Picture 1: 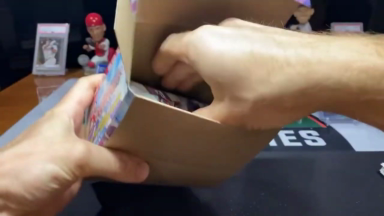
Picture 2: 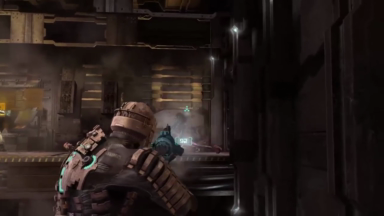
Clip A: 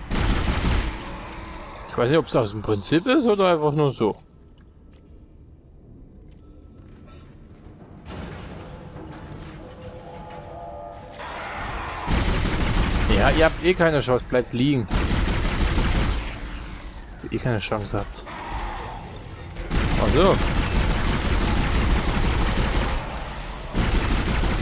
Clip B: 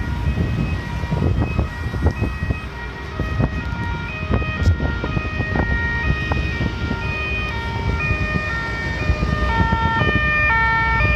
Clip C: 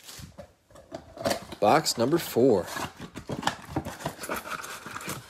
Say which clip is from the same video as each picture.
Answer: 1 C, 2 A